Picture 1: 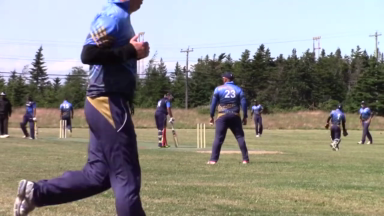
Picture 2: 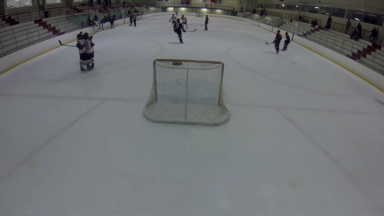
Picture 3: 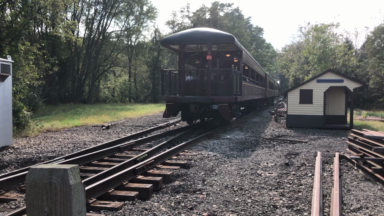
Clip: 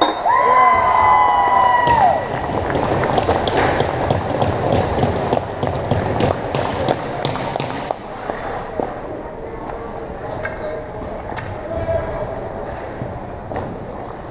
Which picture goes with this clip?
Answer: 2